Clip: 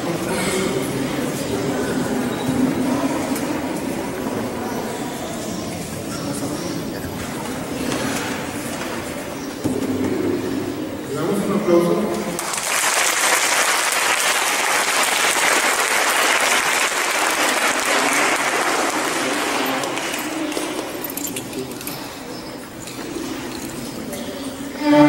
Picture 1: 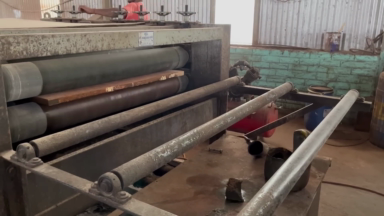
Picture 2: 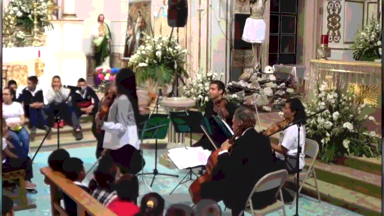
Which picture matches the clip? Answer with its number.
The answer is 2